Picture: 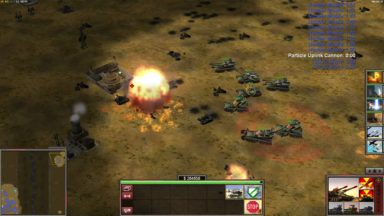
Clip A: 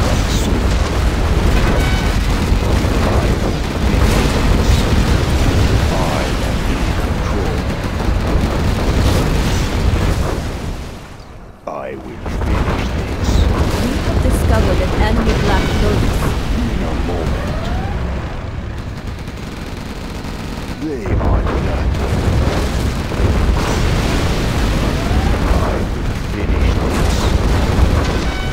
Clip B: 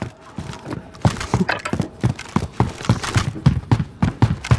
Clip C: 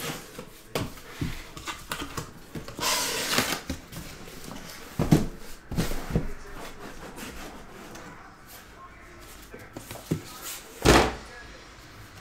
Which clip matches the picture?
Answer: A